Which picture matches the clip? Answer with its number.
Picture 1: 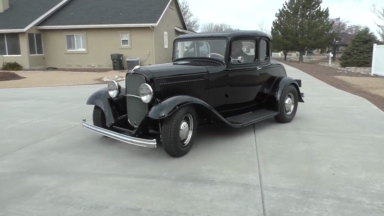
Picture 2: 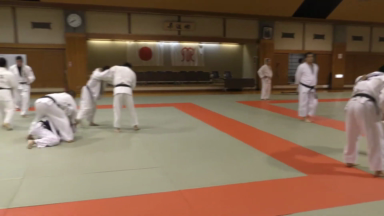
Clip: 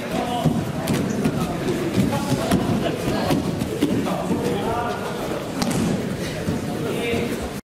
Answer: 2